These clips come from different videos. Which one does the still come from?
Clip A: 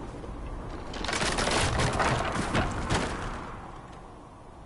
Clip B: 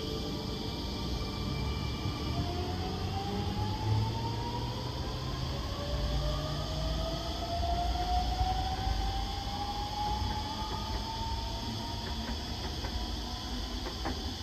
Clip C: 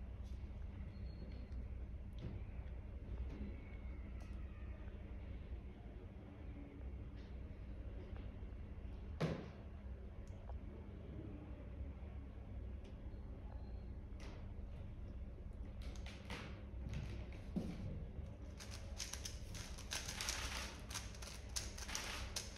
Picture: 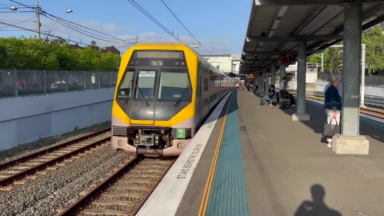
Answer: B